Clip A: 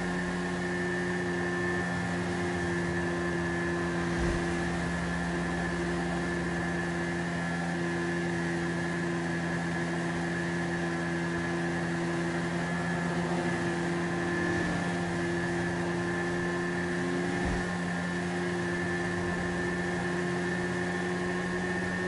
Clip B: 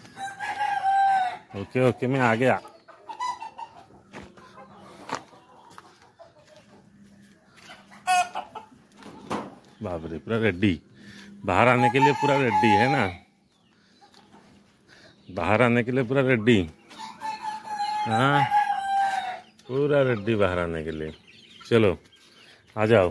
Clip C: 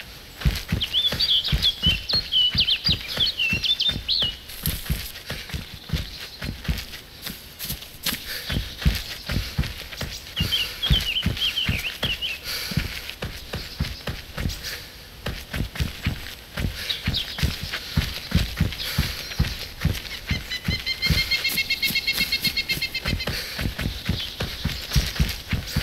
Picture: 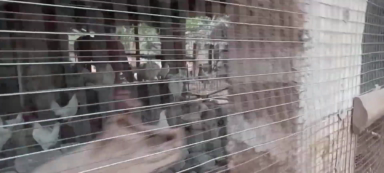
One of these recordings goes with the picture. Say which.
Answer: B